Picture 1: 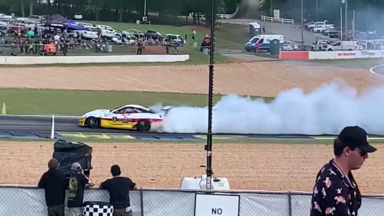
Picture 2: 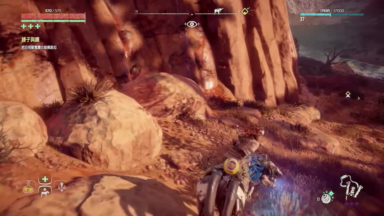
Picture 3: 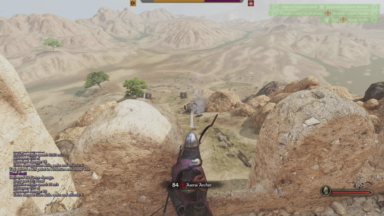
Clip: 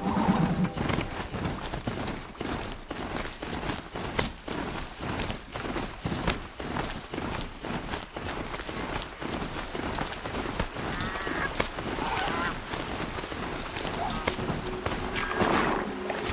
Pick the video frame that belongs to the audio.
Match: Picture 2